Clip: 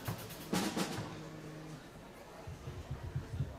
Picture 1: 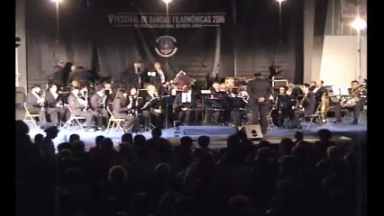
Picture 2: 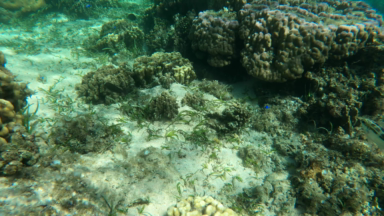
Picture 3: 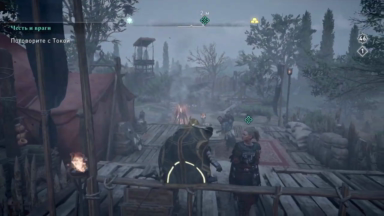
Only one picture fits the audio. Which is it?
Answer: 1